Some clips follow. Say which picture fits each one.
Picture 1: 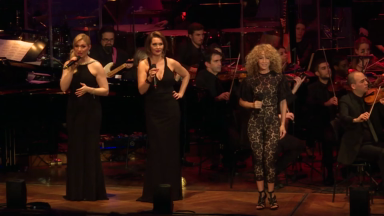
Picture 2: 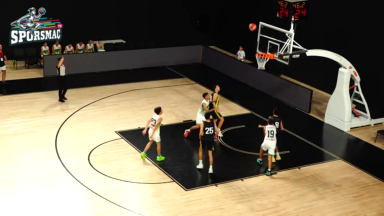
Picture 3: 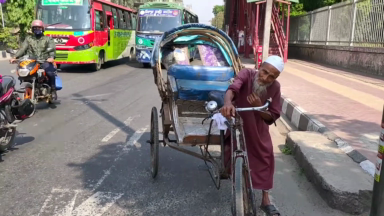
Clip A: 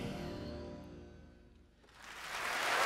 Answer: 1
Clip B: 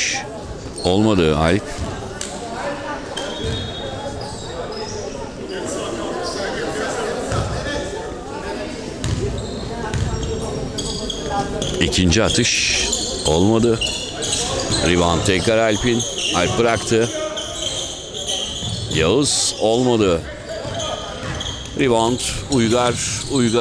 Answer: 2